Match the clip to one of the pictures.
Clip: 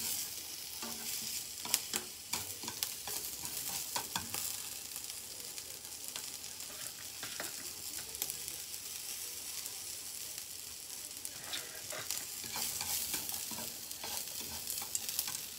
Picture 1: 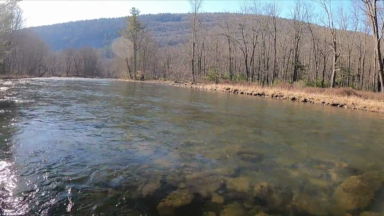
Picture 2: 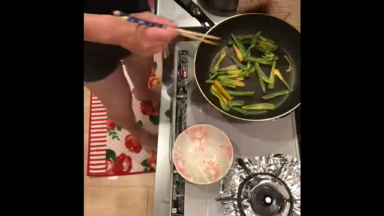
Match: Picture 2